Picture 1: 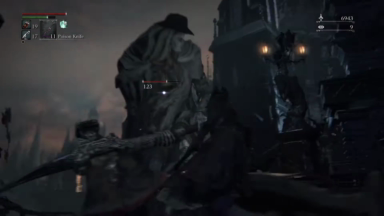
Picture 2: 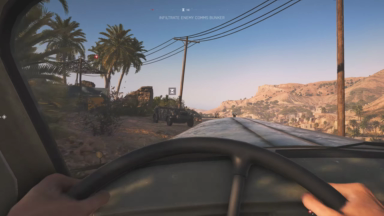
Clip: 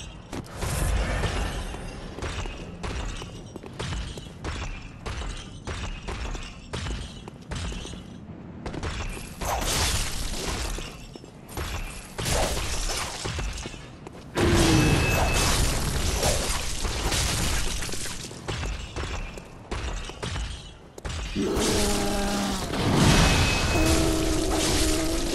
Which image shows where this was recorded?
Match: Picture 1